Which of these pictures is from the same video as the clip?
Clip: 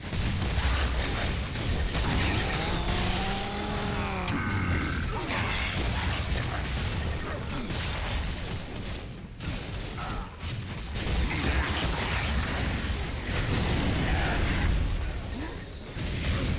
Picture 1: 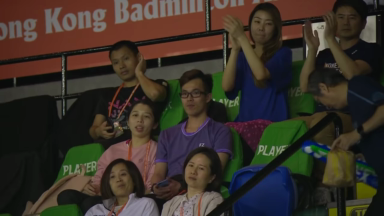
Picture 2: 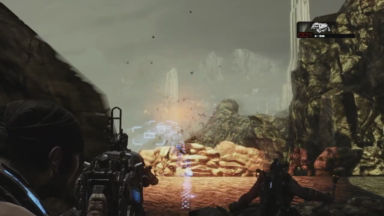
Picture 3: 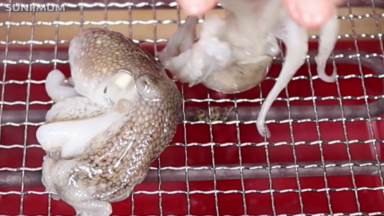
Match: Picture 2